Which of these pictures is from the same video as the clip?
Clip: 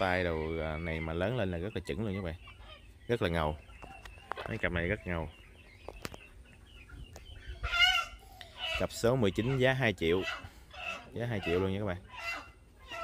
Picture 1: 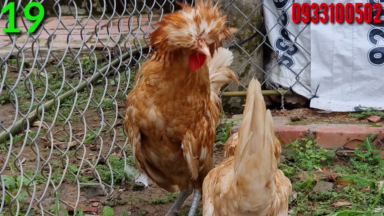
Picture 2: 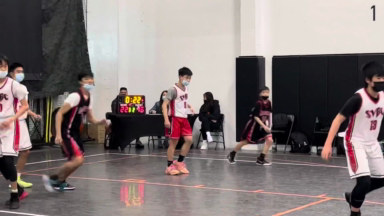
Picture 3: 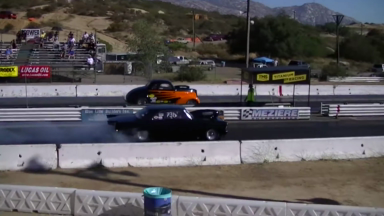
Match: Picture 1